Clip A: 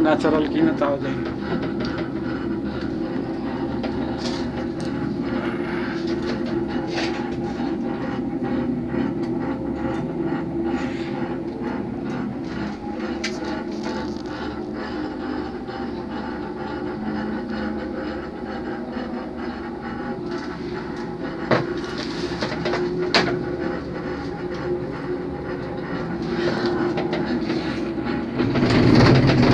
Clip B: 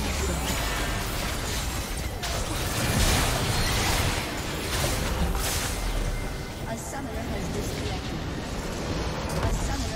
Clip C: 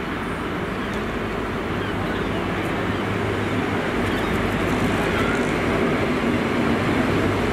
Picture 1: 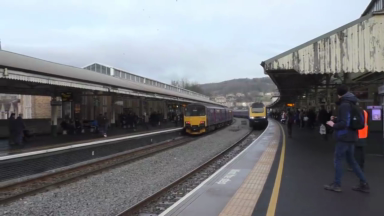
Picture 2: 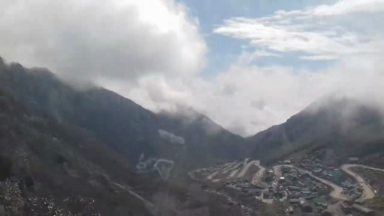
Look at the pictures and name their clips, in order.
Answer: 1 C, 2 A